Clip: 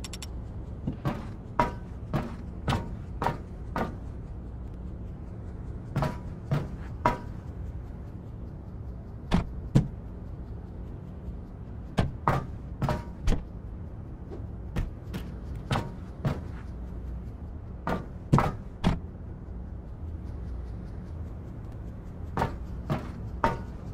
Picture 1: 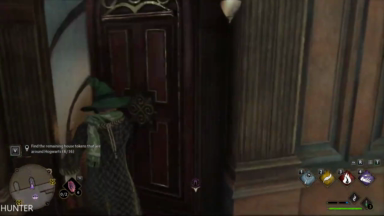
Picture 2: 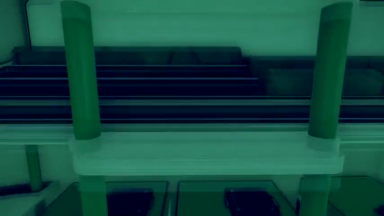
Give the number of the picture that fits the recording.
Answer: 2